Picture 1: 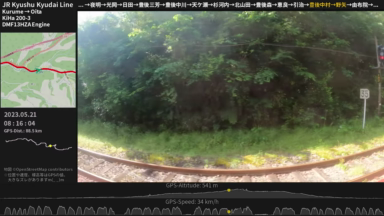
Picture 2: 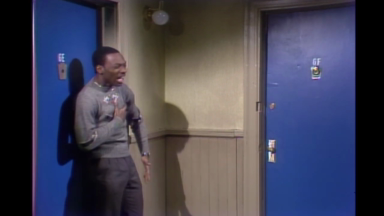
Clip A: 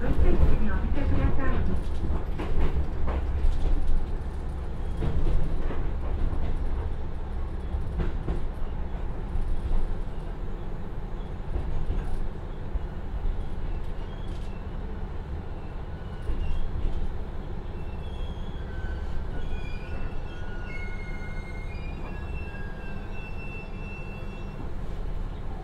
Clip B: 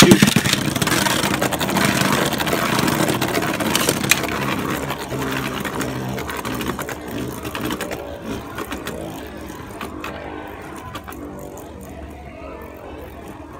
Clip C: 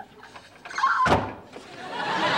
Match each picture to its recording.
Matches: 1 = A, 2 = C